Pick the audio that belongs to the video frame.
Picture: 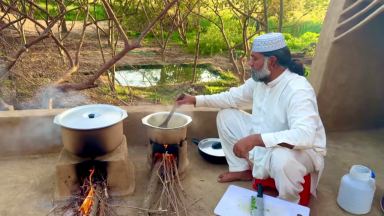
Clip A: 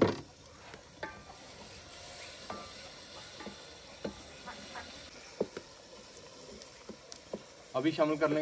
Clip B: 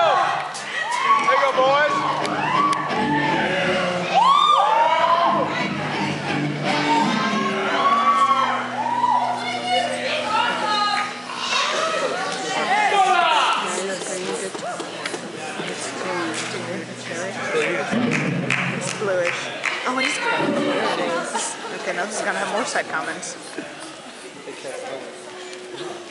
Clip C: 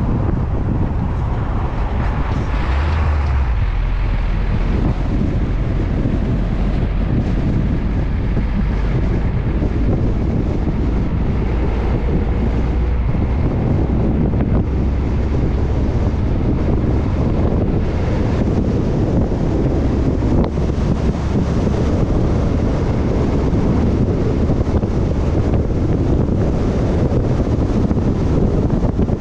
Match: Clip A